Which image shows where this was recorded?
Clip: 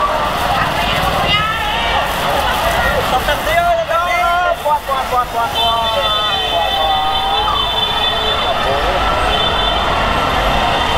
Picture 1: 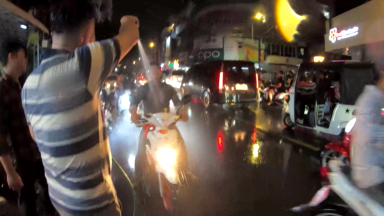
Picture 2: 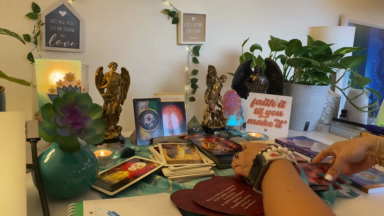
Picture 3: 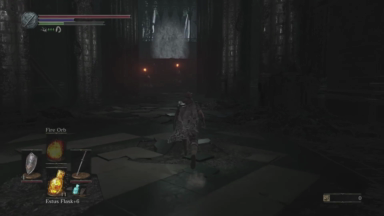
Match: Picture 1